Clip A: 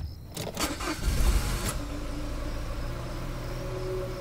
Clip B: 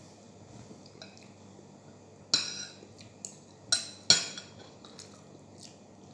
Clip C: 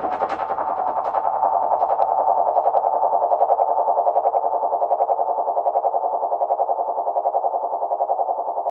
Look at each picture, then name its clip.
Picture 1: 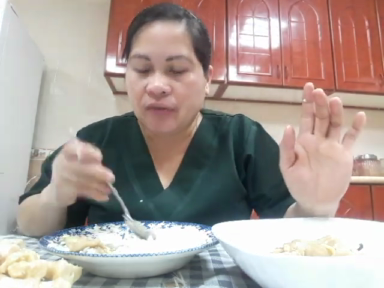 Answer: B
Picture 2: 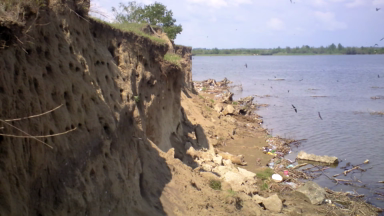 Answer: C